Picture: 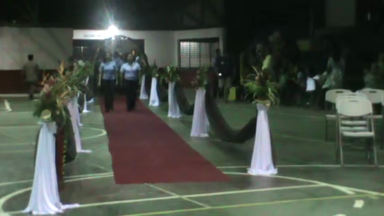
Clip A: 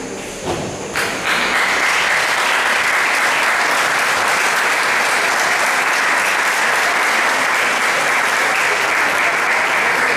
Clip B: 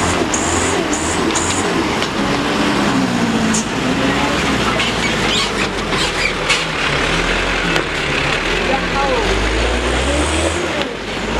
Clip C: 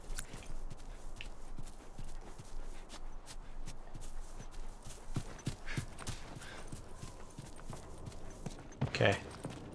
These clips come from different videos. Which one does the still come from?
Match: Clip A